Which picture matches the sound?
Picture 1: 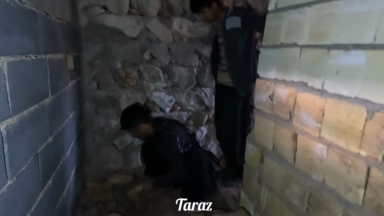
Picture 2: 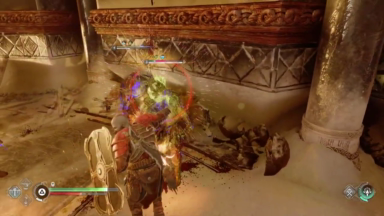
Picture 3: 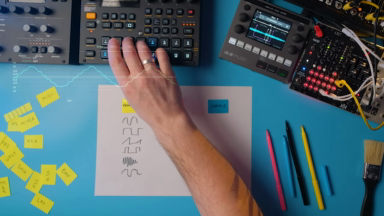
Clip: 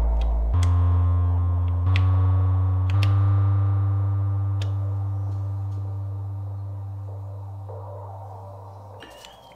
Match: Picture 3